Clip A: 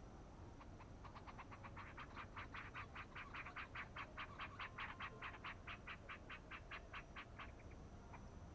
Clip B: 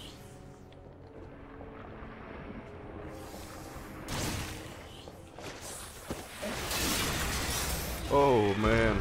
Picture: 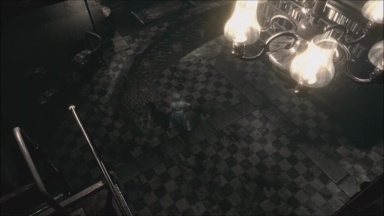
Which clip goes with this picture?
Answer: B